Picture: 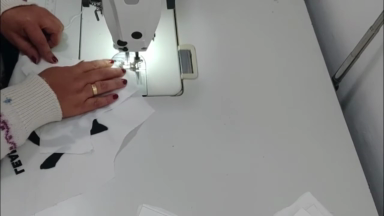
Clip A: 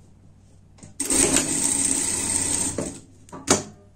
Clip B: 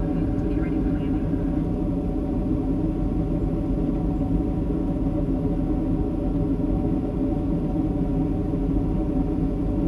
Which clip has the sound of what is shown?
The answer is A